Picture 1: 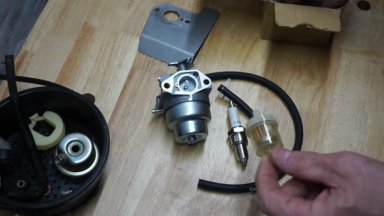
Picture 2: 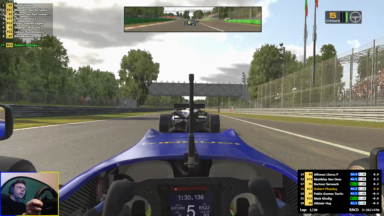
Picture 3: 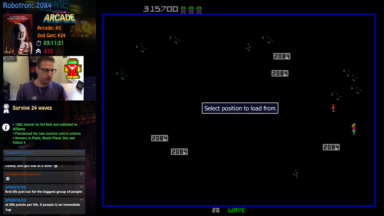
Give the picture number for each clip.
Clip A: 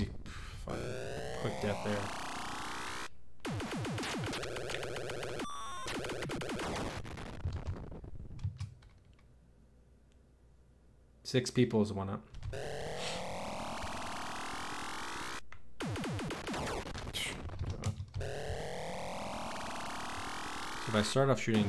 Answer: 3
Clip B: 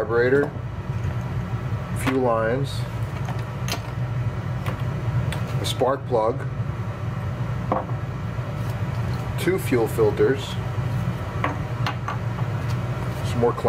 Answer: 1